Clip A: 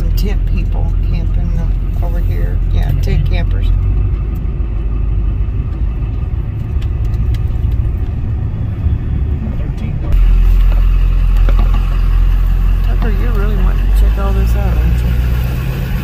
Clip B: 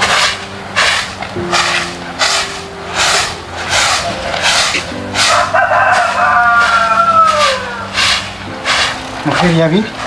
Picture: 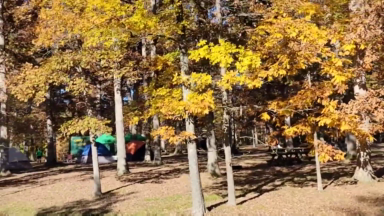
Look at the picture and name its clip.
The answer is A